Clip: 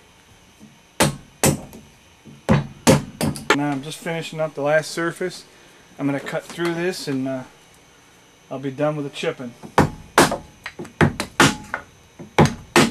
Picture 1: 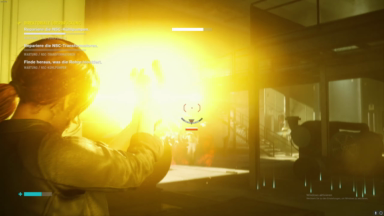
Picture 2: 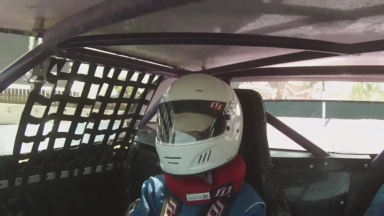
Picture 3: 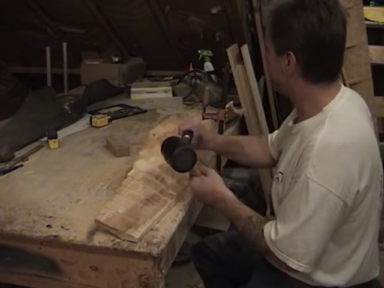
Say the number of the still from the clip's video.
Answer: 3